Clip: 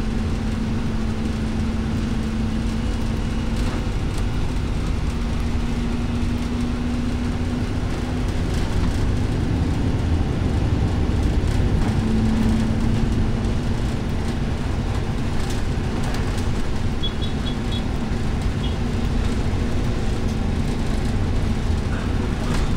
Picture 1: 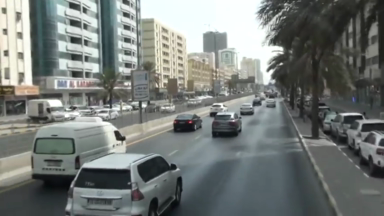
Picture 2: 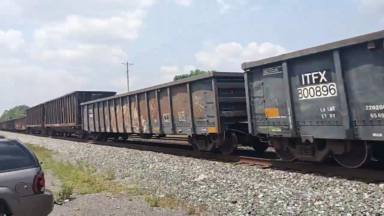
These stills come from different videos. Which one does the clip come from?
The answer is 1